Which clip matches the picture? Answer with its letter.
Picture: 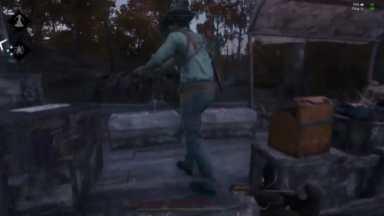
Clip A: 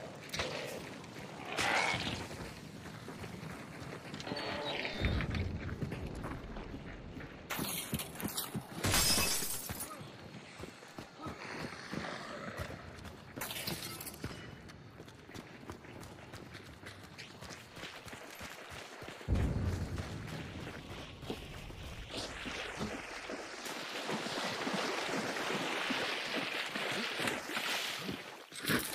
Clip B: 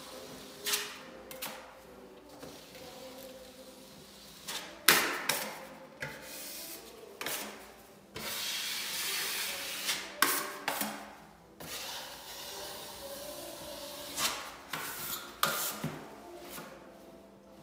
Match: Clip A